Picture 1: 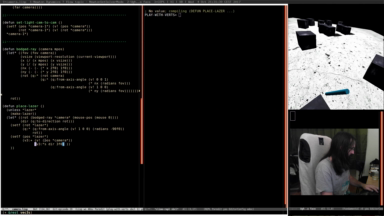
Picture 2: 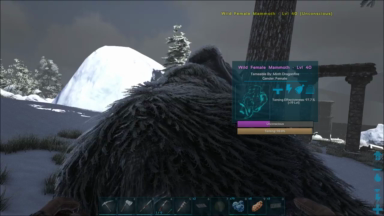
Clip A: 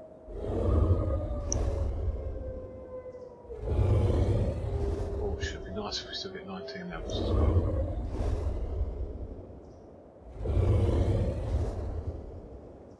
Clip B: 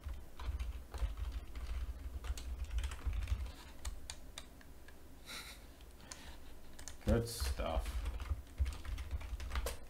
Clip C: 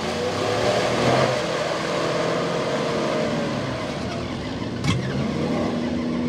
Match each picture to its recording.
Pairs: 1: B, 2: A